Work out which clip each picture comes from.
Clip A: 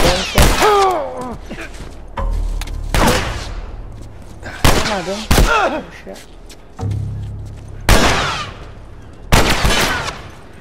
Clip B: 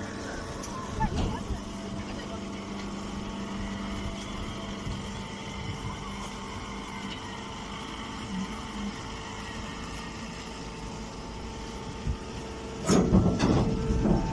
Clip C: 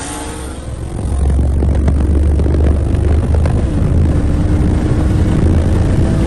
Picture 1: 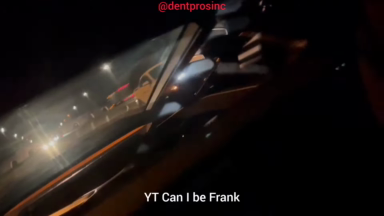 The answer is C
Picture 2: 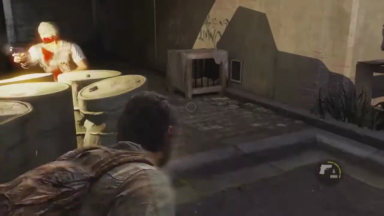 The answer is A